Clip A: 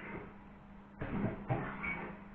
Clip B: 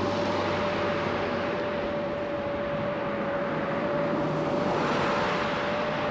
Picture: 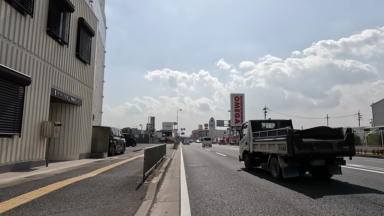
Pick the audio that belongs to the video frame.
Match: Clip B